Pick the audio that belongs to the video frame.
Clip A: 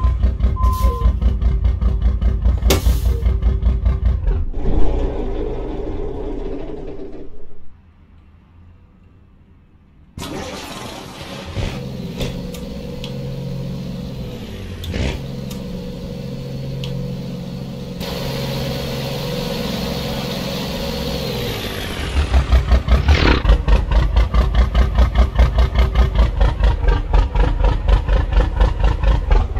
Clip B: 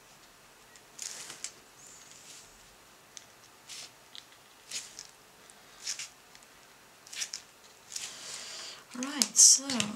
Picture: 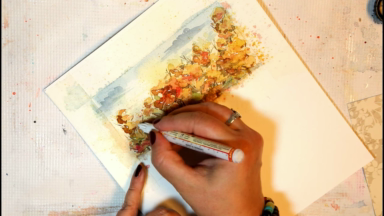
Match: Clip B